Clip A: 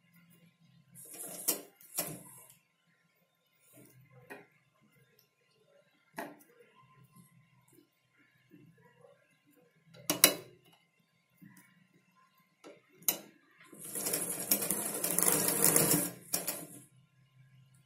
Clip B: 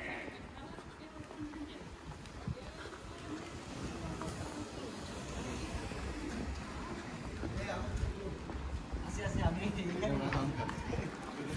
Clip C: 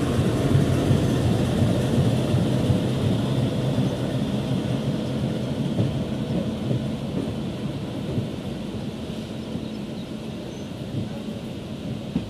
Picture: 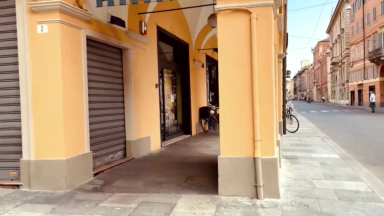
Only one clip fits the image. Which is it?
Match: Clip B